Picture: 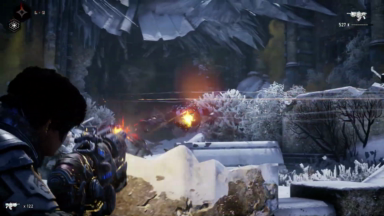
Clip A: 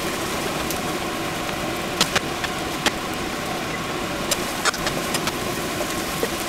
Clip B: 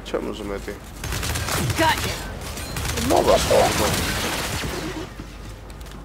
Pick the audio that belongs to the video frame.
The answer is B